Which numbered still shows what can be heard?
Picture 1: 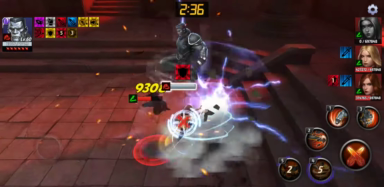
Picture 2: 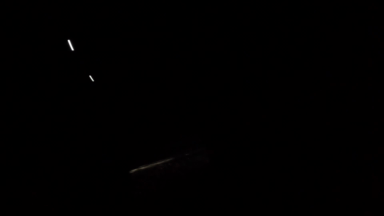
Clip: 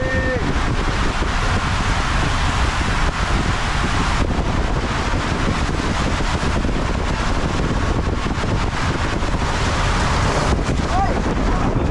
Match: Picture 2